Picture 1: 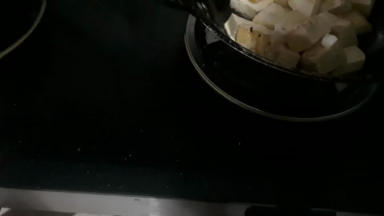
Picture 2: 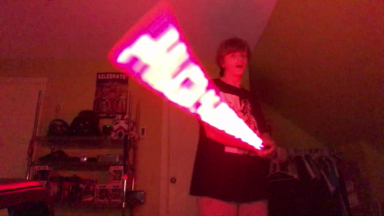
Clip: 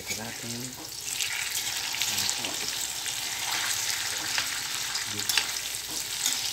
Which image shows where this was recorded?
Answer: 1